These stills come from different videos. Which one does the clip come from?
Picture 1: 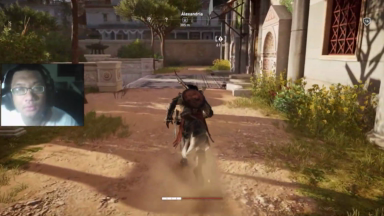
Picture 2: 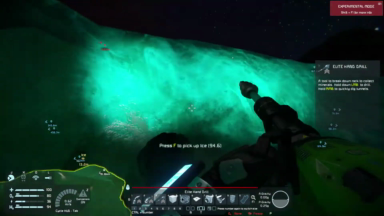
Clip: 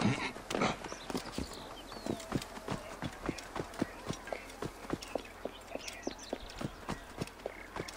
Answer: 1